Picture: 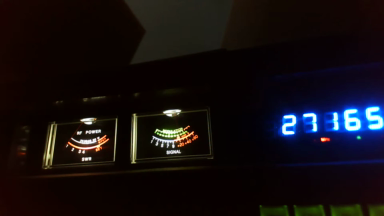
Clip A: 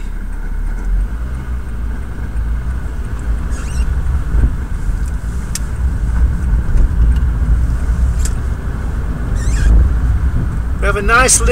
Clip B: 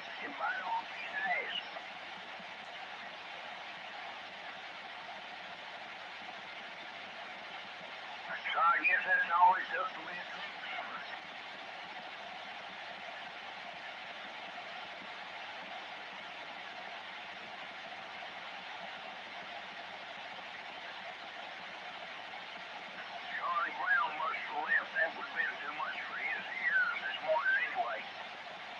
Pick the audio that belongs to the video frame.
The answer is B